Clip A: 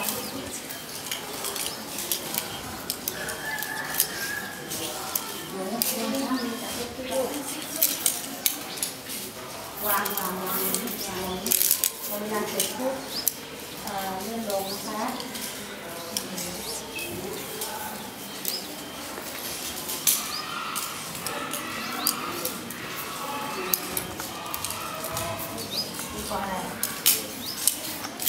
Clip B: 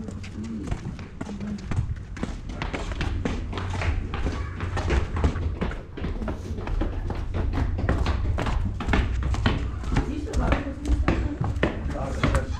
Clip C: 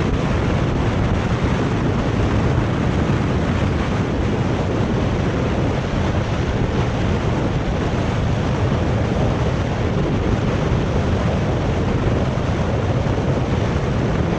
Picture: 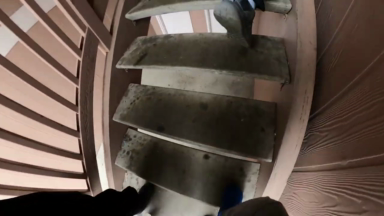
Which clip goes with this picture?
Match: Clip B